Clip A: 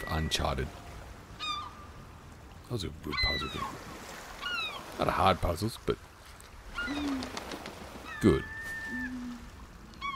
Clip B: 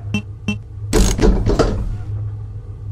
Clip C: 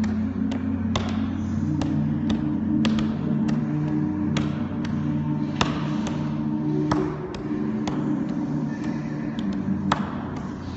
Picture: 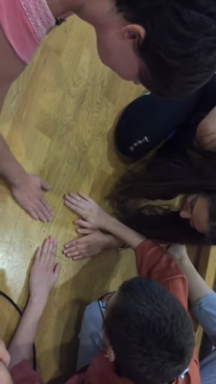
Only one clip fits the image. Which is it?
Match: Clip C